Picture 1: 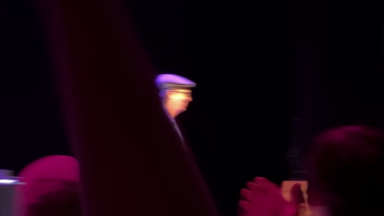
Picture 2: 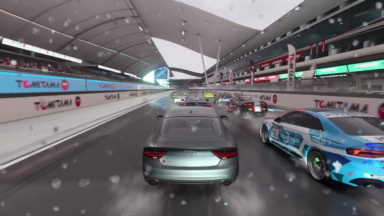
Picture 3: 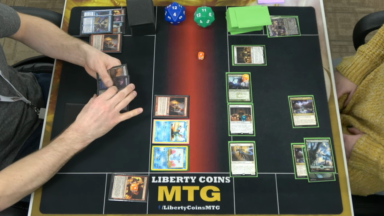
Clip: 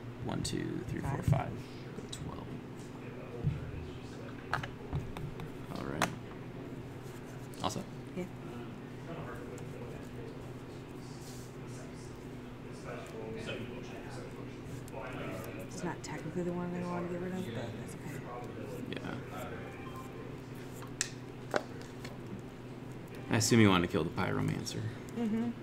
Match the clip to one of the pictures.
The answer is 3